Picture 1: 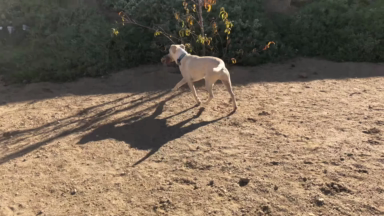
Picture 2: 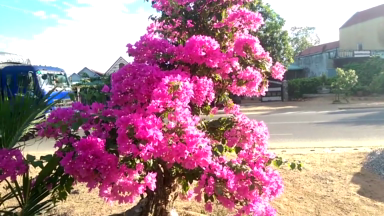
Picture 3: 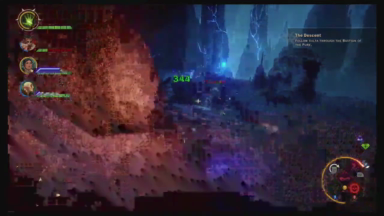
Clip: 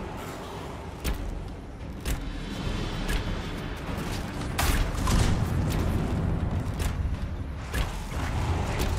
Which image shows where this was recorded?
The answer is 3